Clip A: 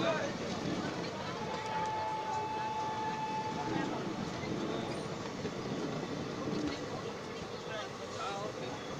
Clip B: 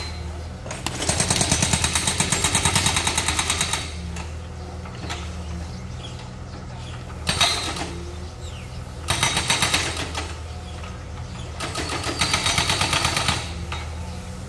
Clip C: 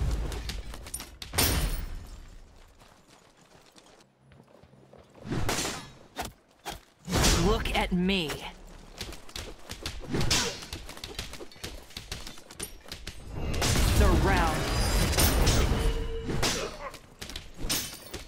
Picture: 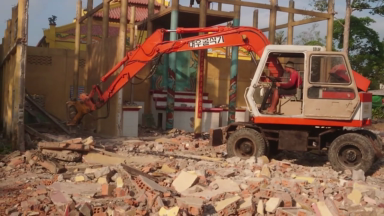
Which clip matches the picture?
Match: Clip B